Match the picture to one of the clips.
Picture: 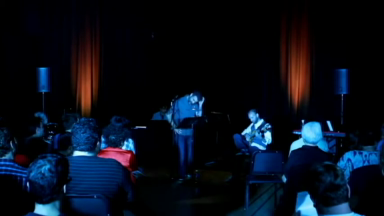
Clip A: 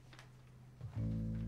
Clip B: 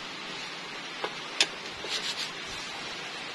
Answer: A